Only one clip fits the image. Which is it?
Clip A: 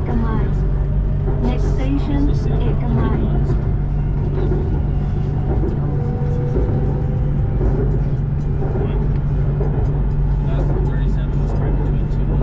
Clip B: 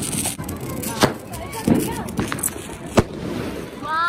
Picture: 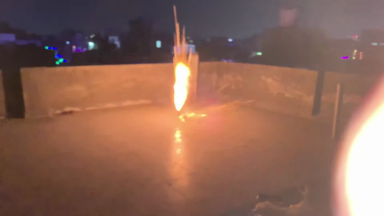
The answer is B